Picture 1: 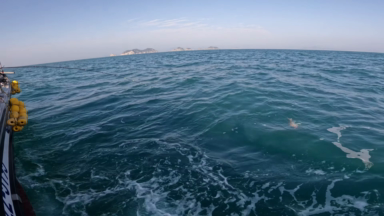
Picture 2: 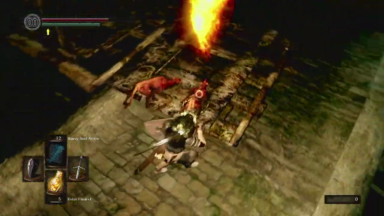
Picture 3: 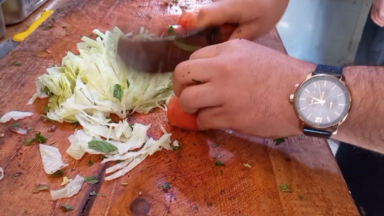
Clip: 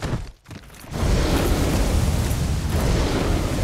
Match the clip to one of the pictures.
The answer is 2